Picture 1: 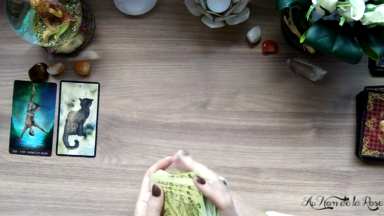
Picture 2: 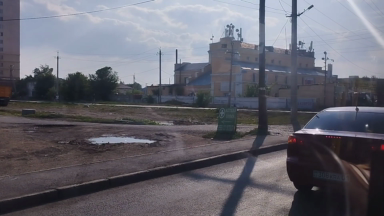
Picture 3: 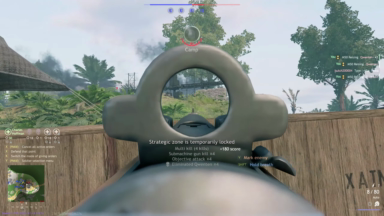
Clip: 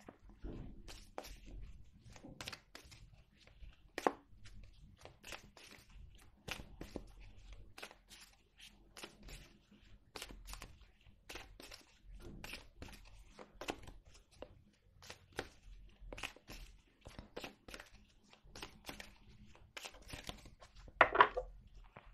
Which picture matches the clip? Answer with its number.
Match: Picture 1